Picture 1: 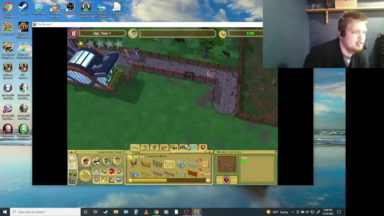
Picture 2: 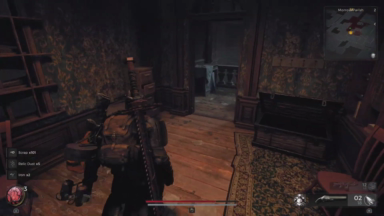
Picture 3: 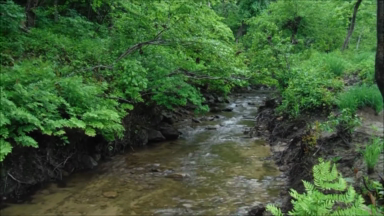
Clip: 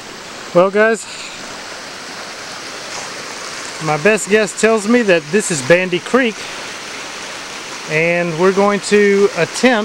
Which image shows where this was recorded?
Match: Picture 3